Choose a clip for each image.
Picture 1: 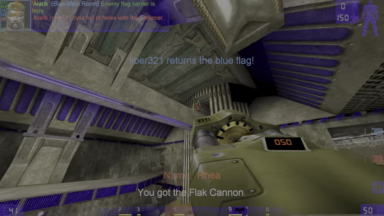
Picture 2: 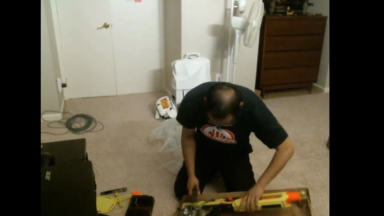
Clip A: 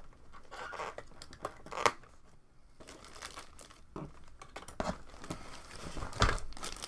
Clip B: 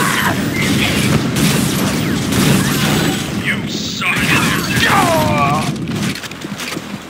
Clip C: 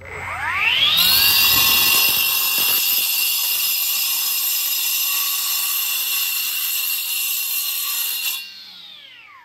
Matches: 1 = B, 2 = A